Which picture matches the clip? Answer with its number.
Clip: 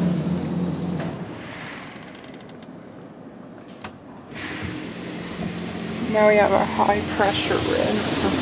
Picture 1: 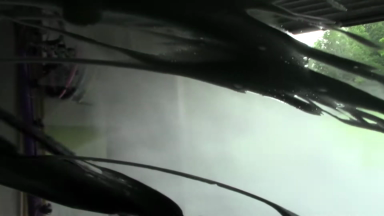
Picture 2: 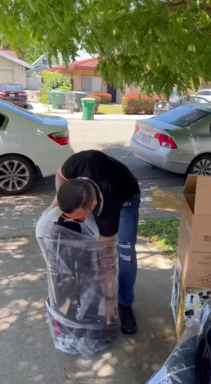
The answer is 1